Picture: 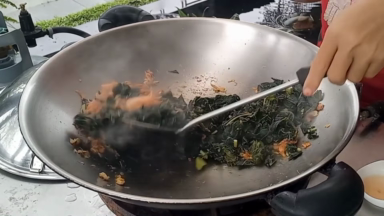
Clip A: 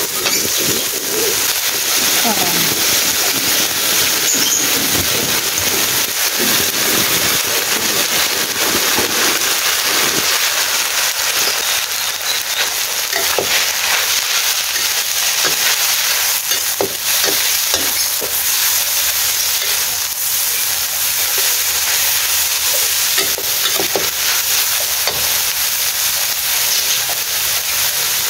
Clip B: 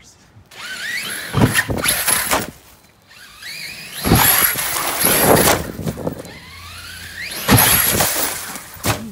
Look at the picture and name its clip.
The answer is A